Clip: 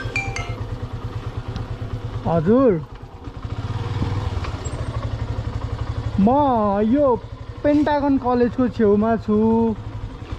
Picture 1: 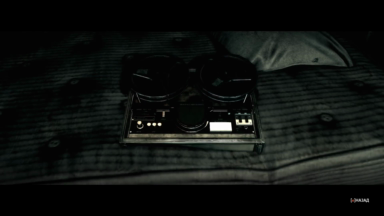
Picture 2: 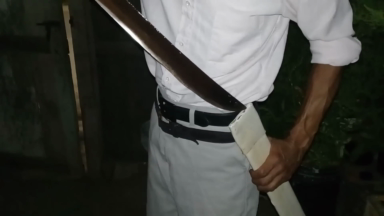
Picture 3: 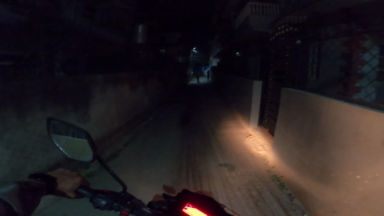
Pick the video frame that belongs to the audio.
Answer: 3